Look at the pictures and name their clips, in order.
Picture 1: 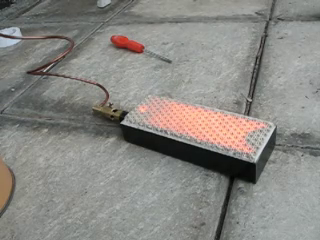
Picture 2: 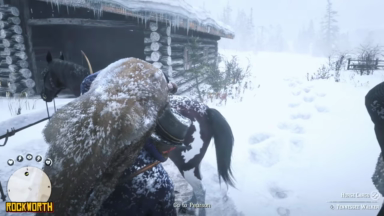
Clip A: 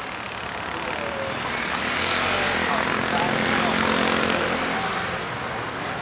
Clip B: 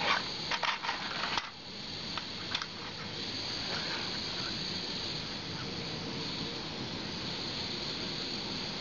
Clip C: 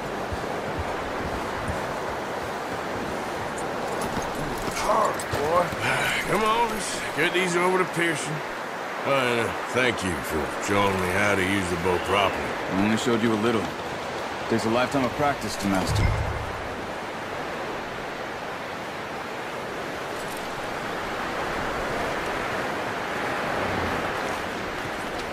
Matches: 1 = B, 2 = C